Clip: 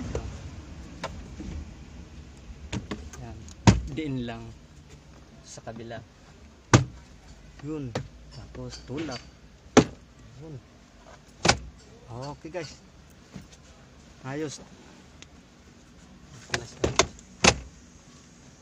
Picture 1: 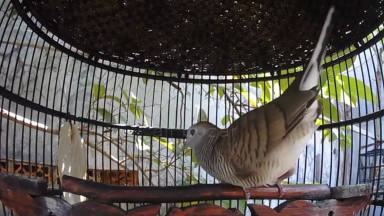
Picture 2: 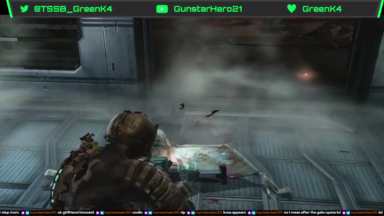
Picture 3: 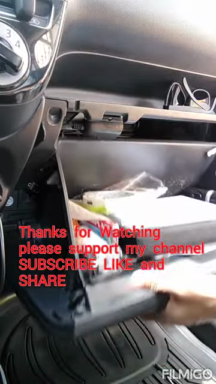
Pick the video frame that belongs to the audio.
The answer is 3